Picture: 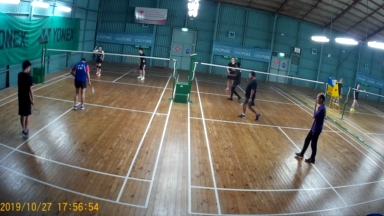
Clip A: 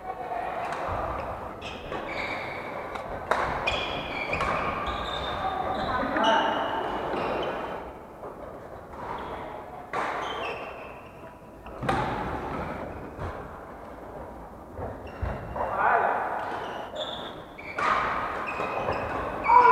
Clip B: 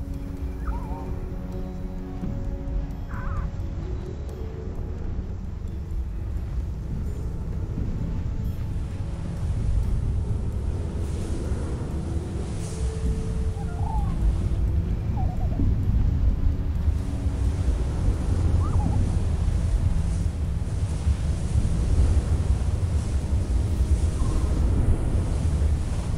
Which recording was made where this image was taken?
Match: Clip A